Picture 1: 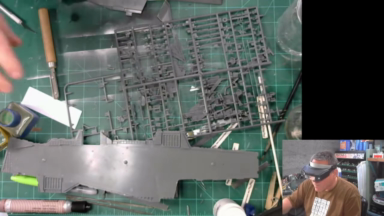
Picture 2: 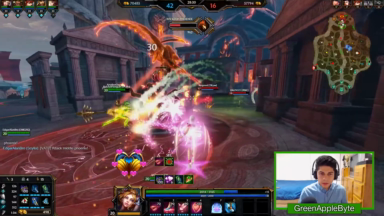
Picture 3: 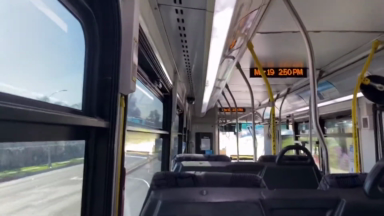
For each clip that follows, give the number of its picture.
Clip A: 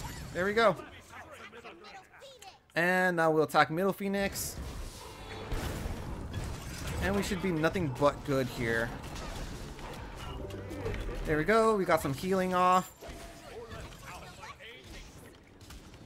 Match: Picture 2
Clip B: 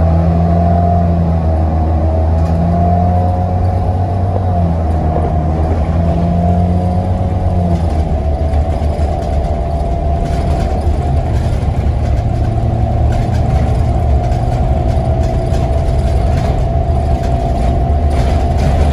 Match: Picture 3